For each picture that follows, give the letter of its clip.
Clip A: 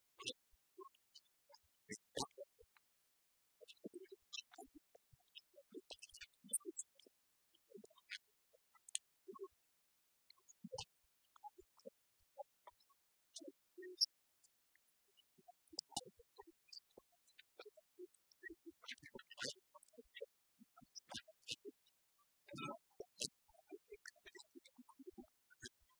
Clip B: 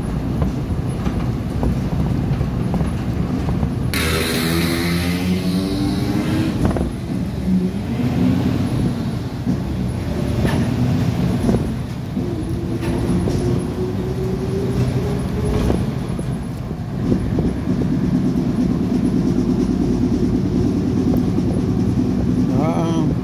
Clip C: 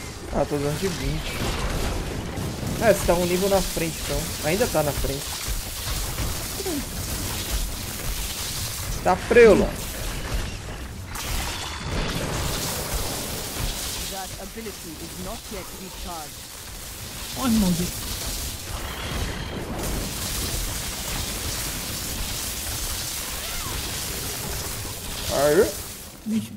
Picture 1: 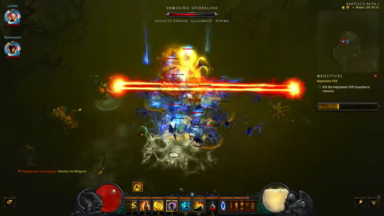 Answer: C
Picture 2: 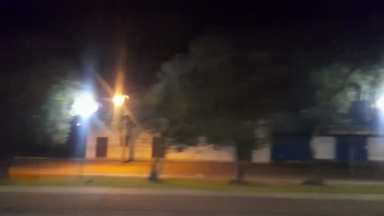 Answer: B